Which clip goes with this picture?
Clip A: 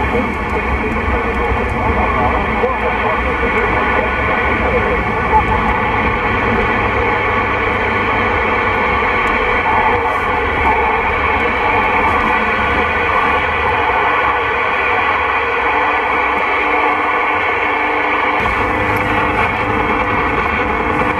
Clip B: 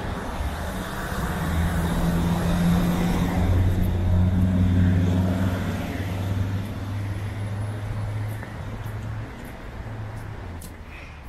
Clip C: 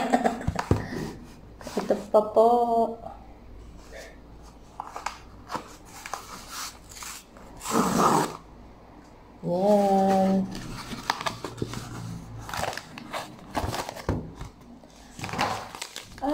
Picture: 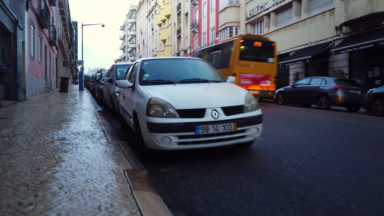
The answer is B